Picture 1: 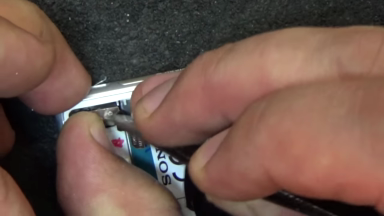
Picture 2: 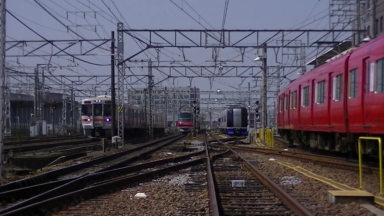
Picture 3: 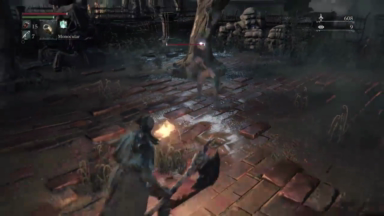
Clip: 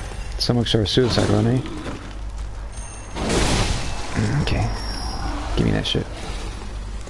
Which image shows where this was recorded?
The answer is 3